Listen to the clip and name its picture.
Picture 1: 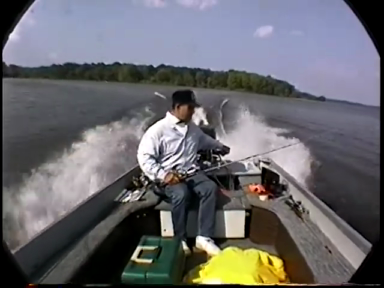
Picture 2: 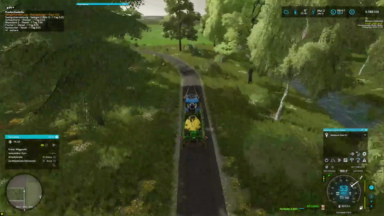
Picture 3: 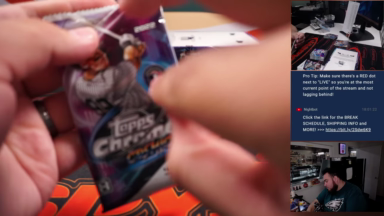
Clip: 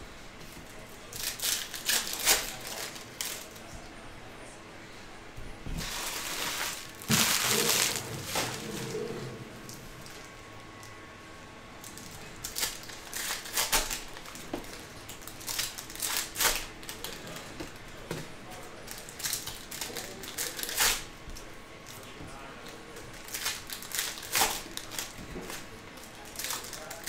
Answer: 3